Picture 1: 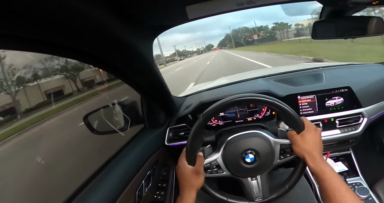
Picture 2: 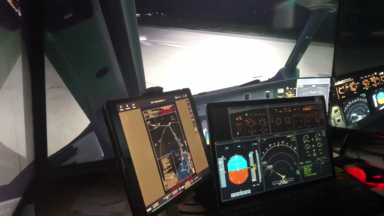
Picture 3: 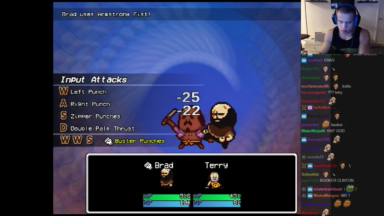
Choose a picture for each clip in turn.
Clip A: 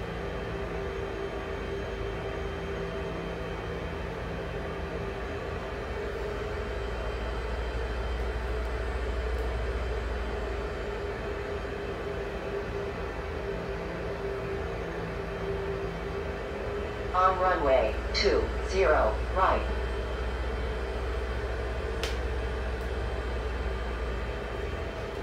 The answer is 2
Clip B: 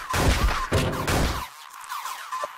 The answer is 3